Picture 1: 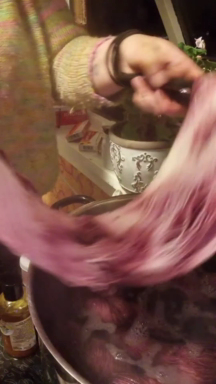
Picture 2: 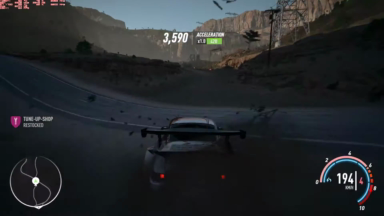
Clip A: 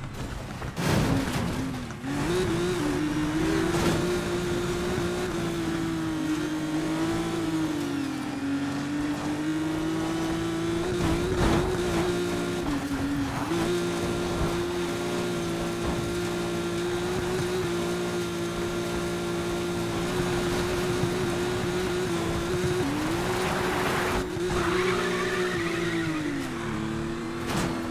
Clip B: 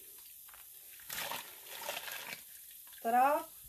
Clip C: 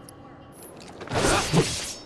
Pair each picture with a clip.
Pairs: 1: B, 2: A